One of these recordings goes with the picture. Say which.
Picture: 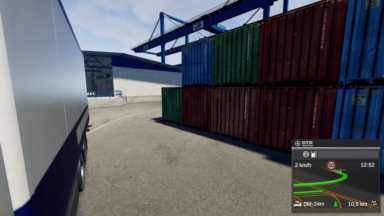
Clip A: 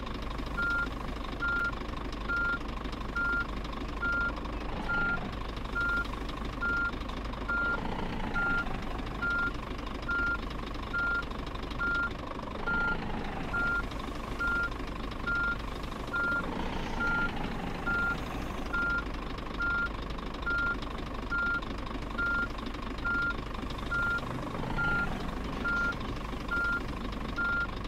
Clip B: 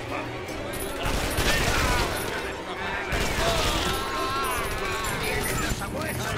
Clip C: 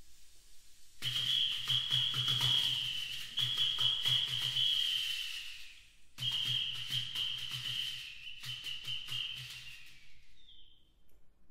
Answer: A